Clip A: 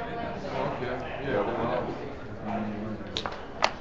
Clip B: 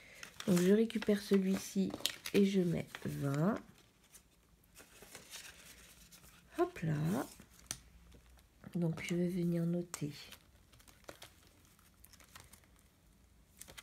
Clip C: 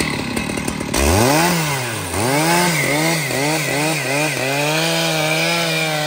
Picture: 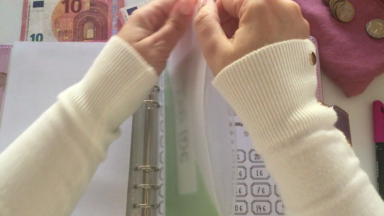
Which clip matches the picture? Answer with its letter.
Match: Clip B